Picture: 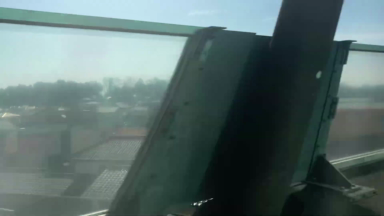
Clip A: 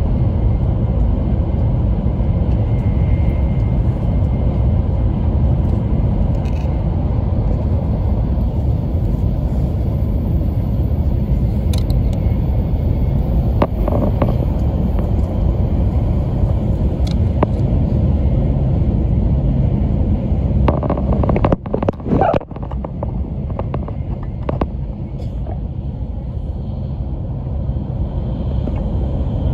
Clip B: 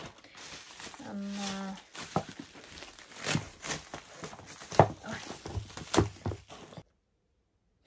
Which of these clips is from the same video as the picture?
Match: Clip A